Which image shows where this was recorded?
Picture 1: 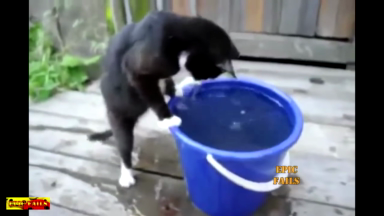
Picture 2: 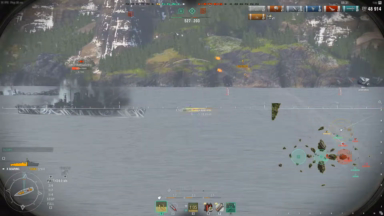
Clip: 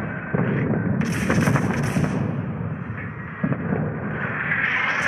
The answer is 2